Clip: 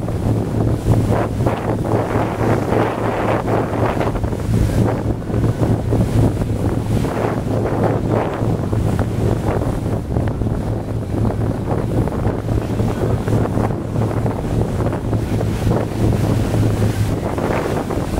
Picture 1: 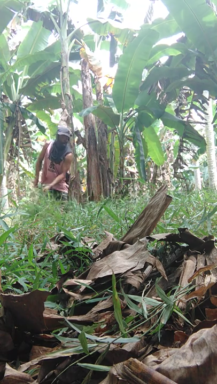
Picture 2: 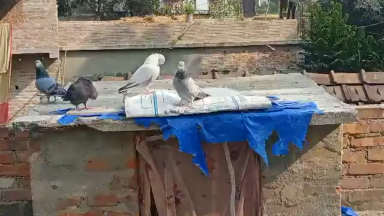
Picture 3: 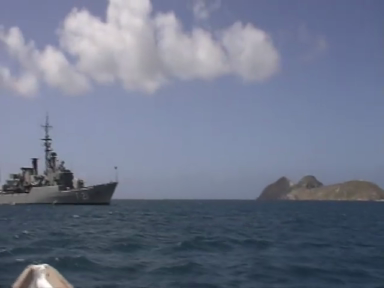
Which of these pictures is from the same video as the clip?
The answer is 3